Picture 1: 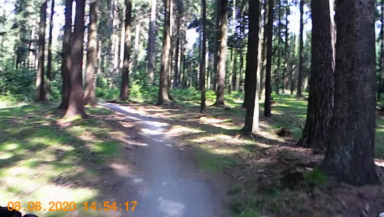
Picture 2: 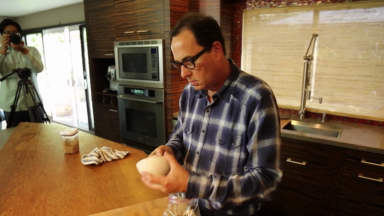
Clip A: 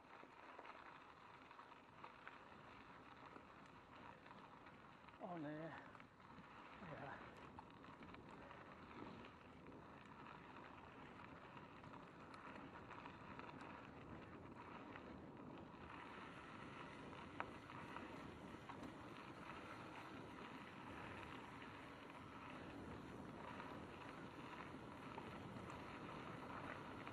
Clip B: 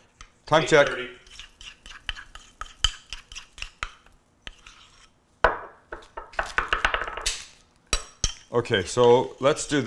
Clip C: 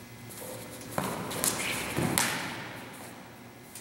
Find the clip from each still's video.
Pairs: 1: A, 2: B